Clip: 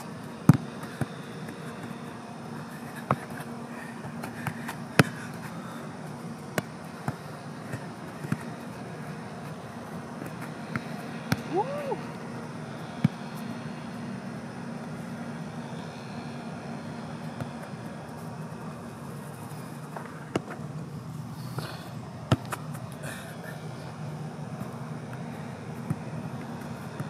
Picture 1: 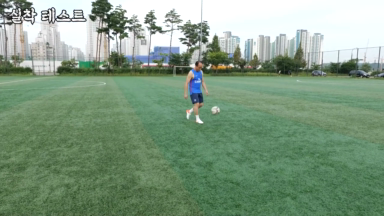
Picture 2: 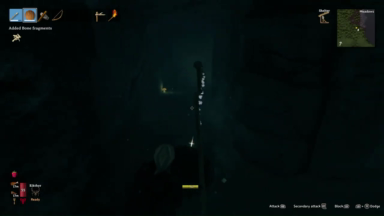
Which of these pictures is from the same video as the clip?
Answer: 1